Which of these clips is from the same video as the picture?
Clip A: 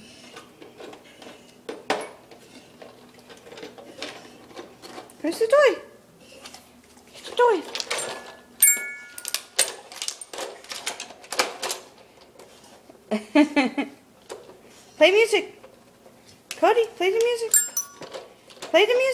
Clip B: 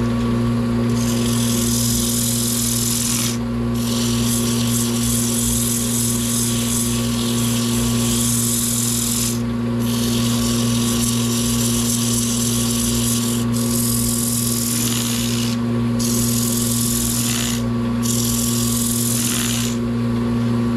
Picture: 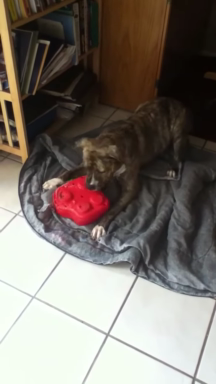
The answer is A